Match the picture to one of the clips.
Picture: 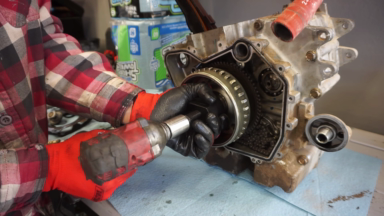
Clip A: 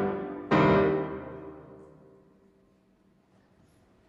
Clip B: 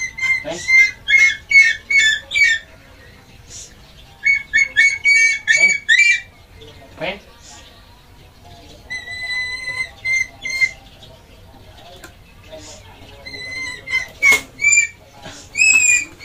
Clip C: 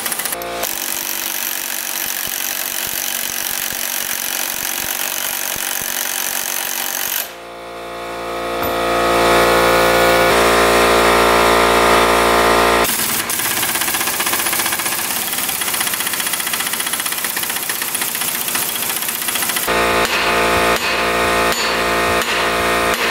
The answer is C